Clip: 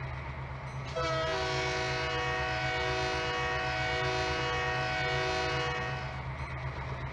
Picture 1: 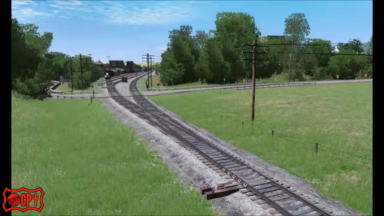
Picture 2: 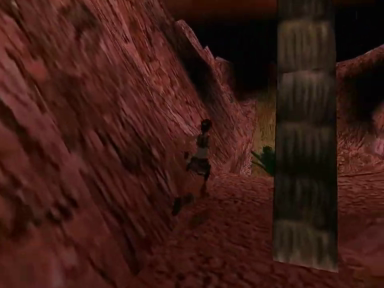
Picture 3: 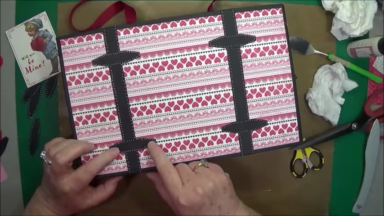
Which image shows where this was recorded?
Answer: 1